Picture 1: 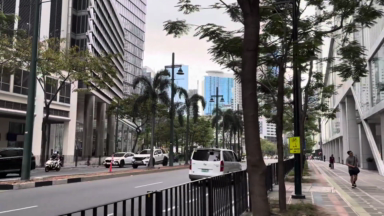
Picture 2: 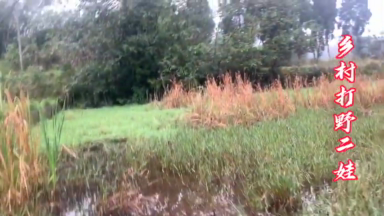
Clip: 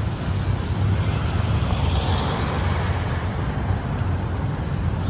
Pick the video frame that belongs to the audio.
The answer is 1